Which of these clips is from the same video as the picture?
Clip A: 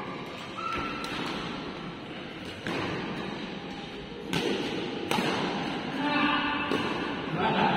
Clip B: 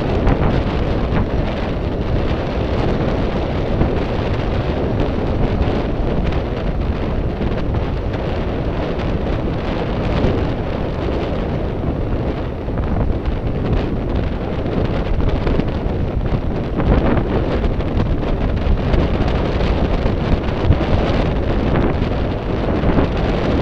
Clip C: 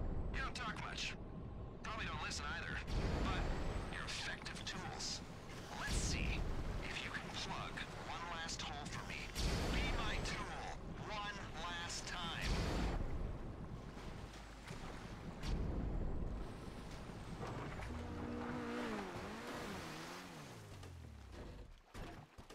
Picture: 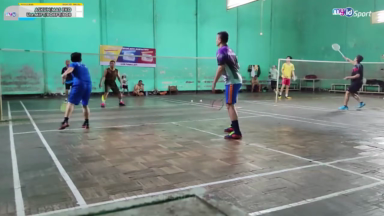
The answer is A